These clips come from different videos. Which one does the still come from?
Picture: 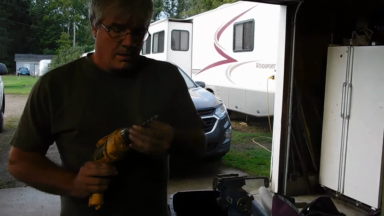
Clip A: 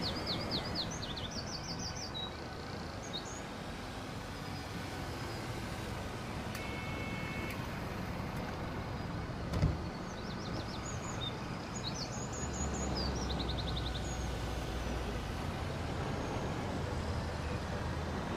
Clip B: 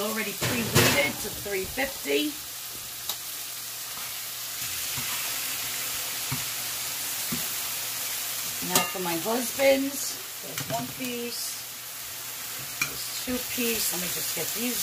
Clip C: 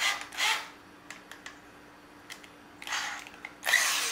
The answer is C